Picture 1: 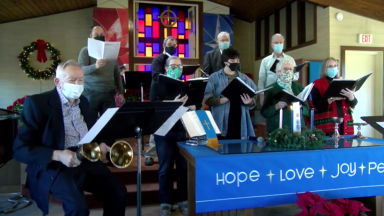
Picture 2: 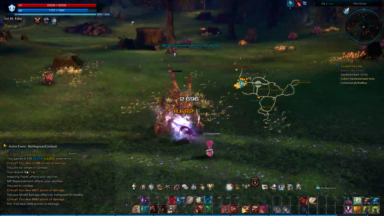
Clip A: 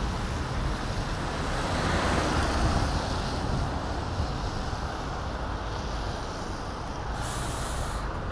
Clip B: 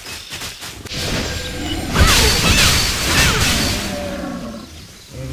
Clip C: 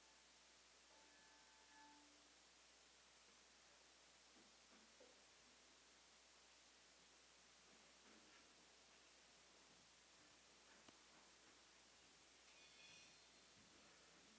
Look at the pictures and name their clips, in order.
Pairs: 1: C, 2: B